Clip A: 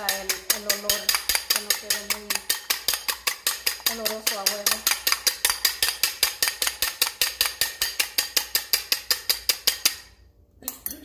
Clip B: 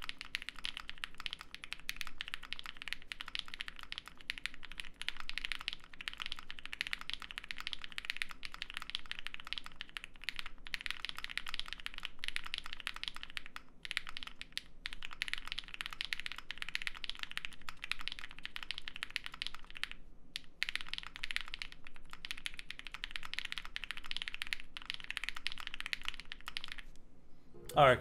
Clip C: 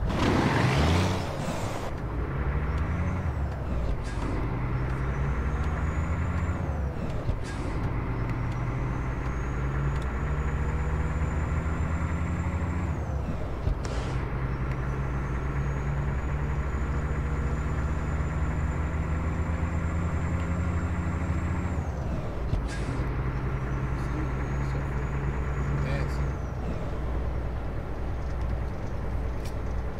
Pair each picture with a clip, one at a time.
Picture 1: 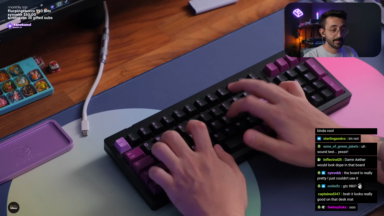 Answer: B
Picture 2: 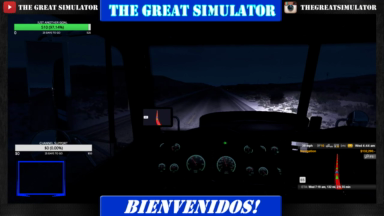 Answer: C